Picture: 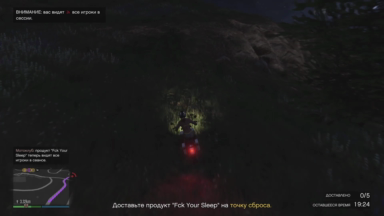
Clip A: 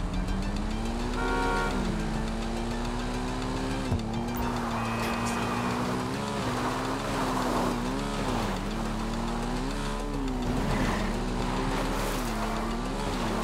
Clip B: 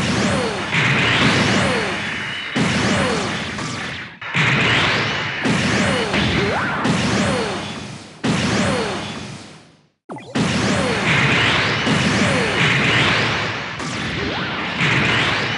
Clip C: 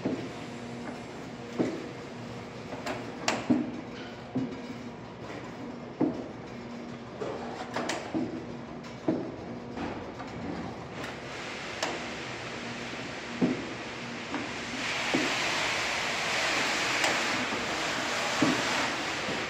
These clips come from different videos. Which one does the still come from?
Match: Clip A